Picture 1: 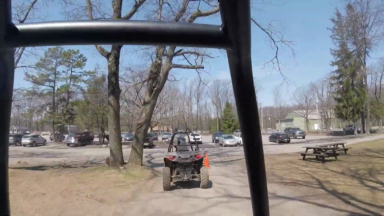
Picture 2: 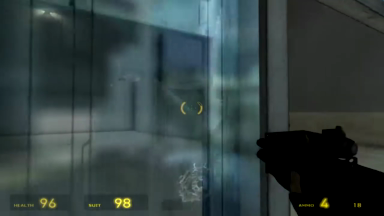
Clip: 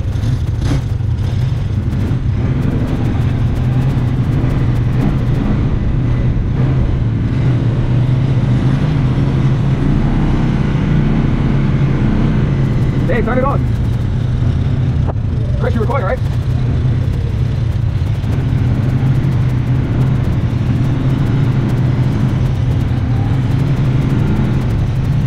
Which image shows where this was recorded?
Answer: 1